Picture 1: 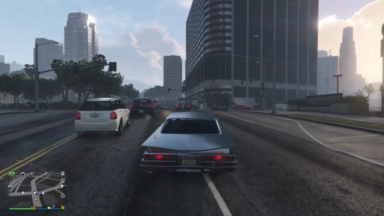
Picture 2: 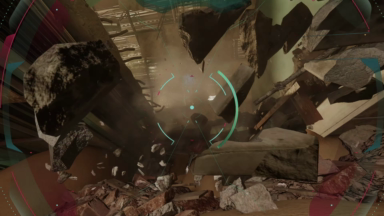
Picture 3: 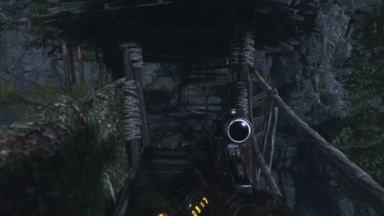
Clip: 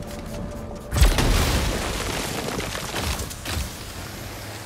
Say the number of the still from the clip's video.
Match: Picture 2